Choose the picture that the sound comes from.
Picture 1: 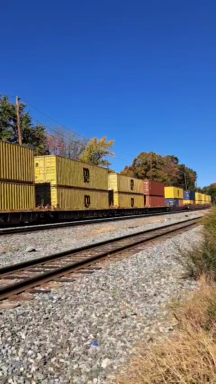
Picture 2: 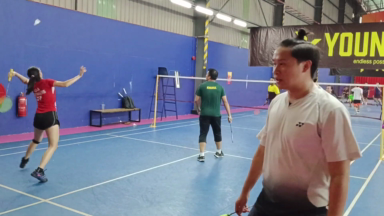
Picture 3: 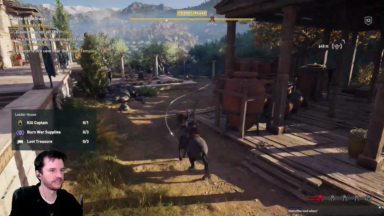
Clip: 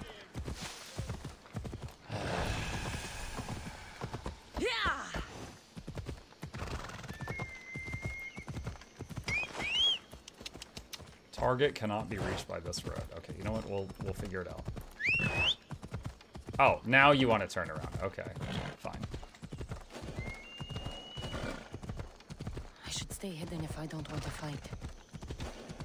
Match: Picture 3